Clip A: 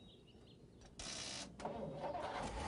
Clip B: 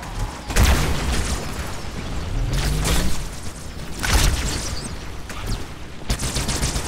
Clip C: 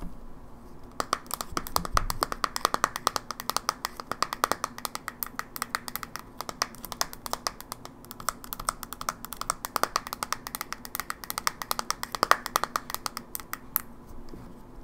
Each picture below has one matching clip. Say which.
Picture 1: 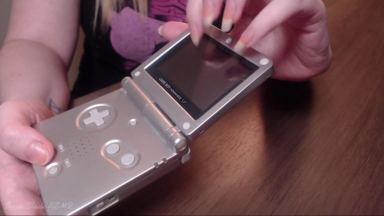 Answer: C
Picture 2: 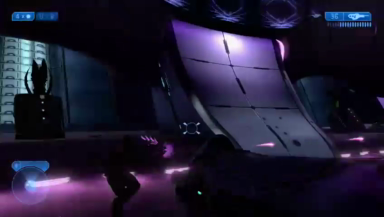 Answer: B